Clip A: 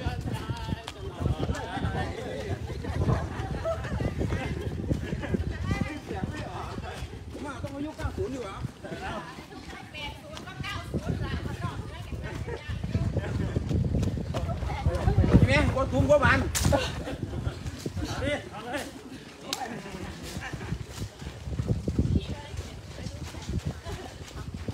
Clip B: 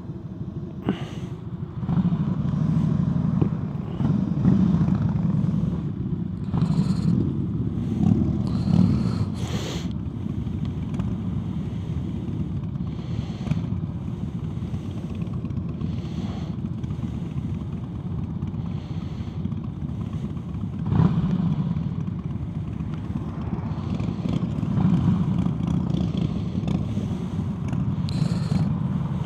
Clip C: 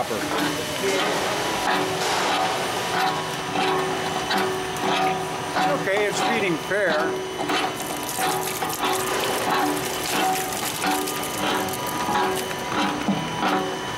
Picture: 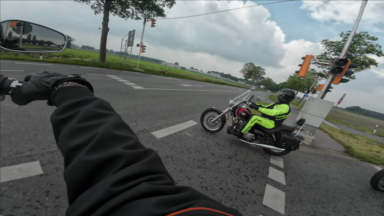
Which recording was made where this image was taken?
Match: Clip B